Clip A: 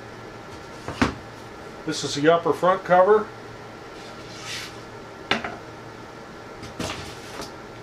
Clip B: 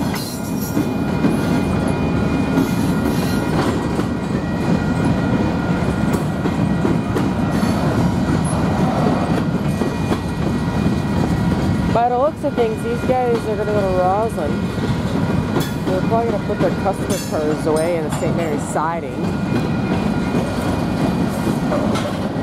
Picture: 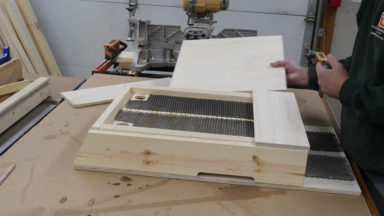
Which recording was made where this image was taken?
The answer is A